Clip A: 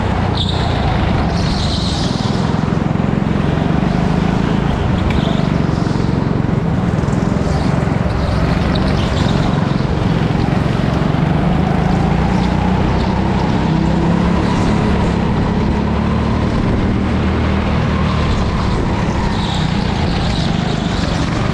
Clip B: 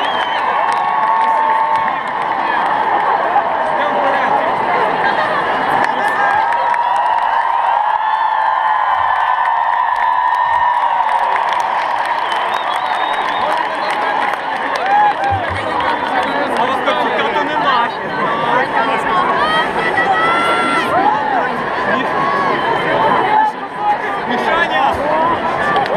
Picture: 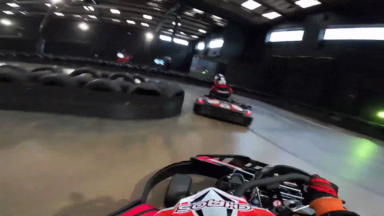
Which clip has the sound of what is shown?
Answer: A